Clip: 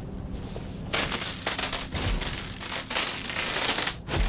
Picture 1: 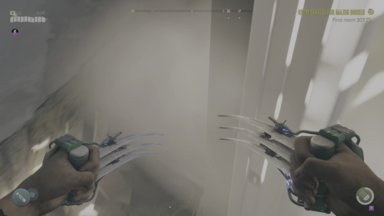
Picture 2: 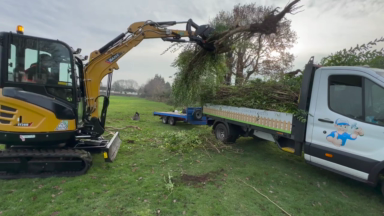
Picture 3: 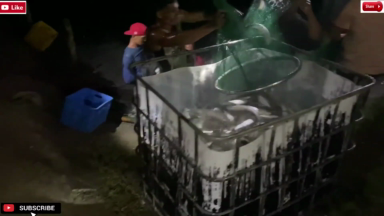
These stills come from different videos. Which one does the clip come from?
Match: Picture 1